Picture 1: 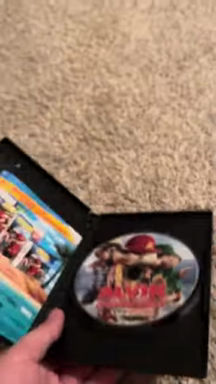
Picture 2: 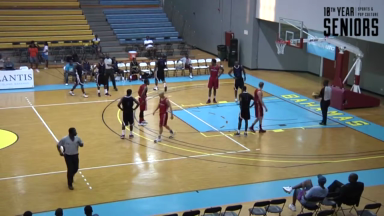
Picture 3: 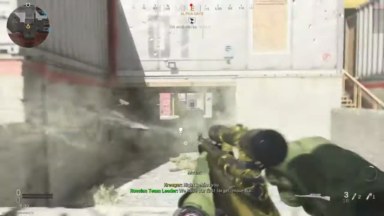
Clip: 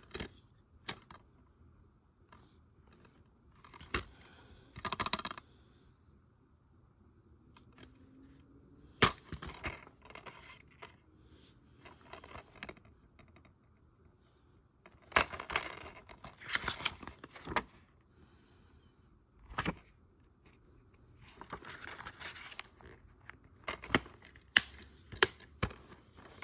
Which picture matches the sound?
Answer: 1